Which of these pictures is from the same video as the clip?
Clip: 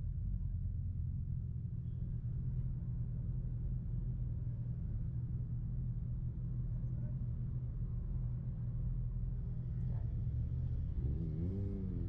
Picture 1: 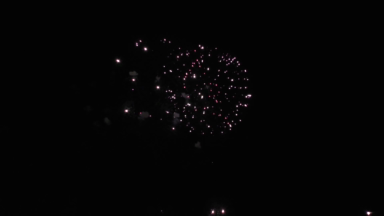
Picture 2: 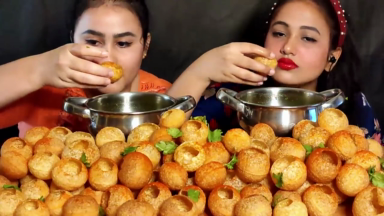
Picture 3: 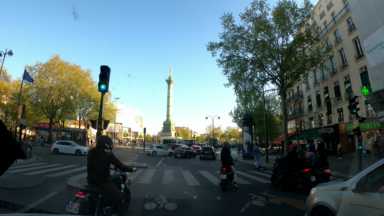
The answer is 3